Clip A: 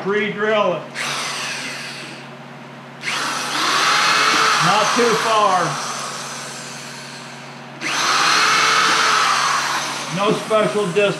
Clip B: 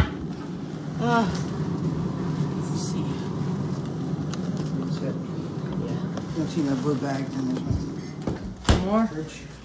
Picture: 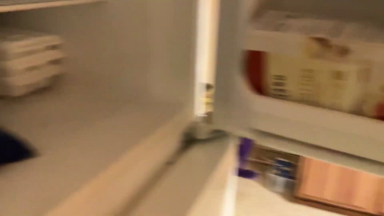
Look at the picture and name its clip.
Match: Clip B